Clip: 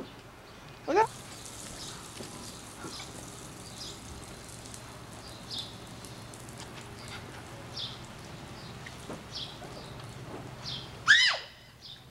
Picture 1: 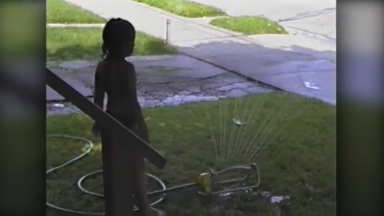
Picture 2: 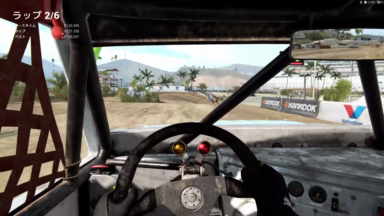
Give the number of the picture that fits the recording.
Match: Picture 1